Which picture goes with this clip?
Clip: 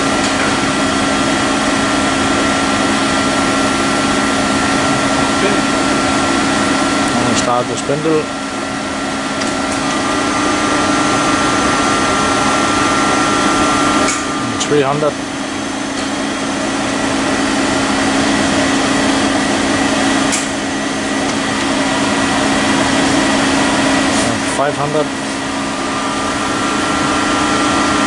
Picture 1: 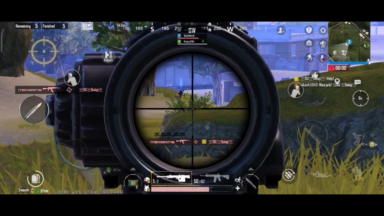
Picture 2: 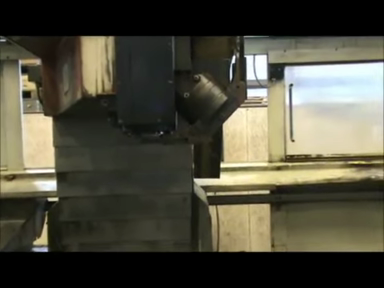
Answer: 2